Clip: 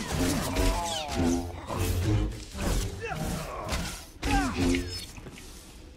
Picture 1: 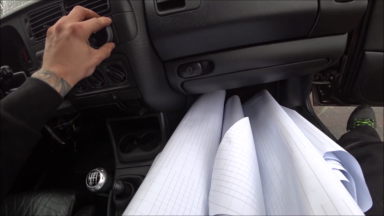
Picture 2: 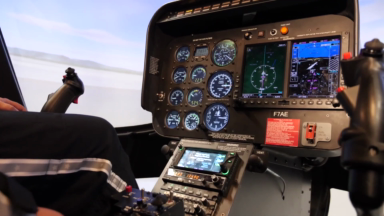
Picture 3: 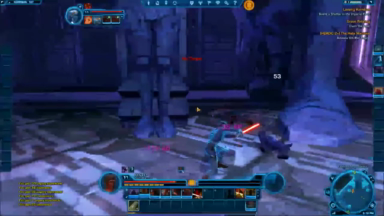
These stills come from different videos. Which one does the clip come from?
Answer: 3